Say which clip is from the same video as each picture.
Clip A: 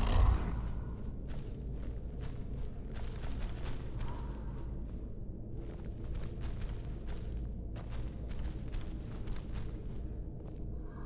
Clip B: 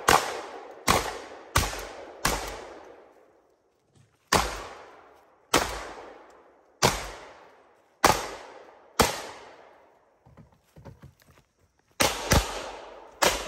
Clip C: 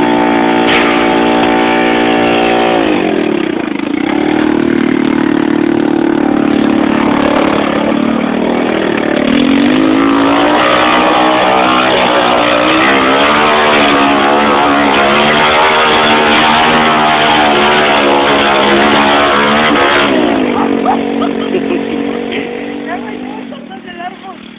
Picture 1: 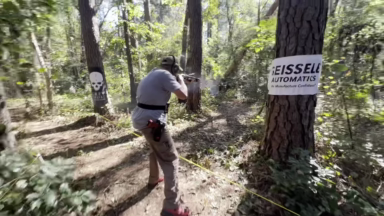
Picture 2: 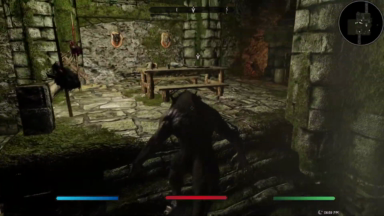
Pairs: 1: B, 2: A